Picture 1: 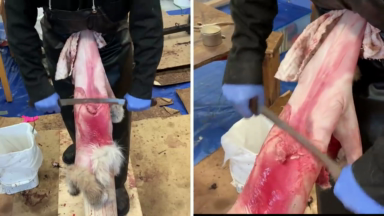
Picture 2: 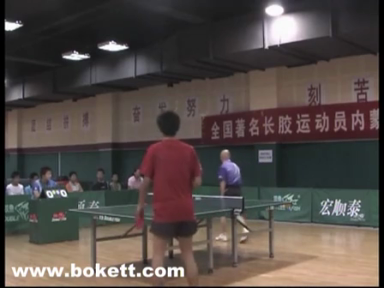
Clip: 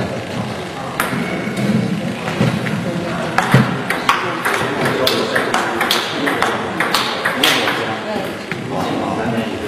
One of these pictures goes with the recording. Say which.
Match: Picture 2